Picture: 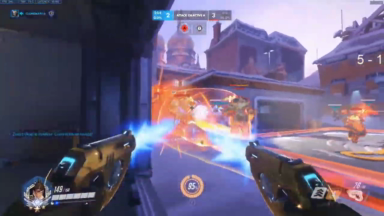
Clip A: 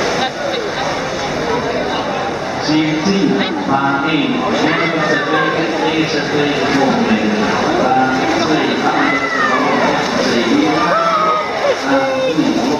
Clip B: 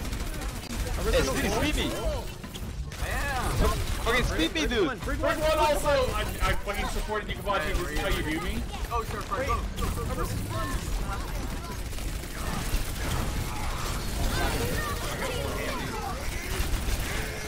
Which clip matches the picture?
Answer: B